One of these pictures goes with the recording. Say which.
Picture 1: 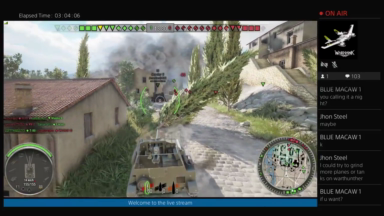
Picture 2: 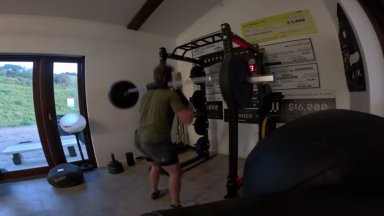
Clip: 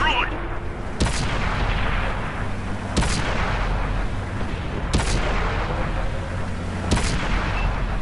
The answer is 1